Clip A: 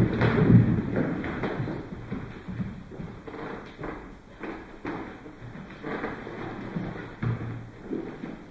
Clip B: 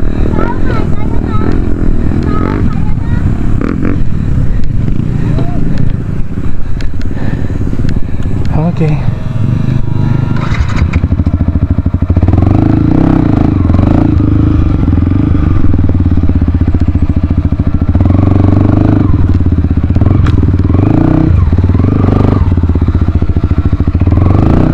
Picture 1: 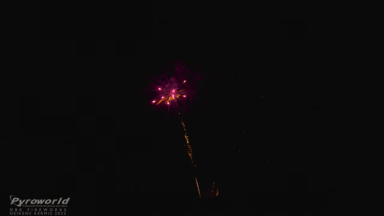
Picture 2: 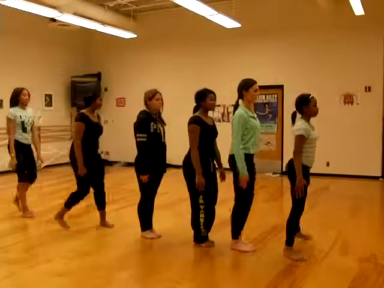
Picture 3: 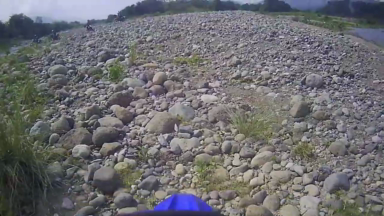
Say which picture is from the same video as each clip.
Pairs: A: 2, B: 3